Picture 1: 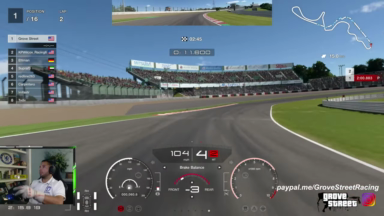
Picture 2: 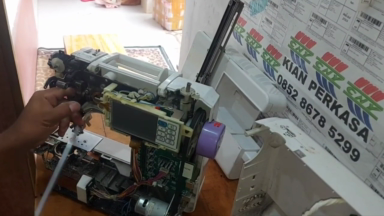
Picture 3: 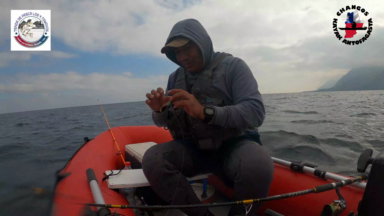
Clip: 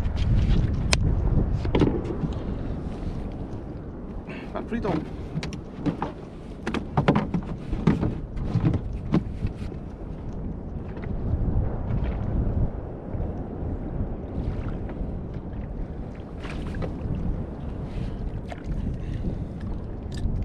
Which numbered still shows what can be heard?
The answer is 3